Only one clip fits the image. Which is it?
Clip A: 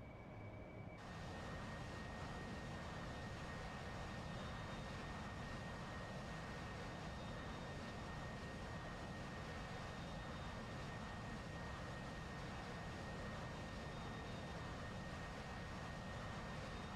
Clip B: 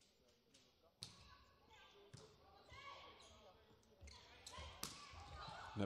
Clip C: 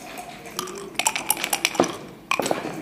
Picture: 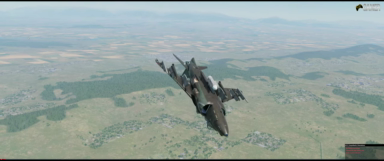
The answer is A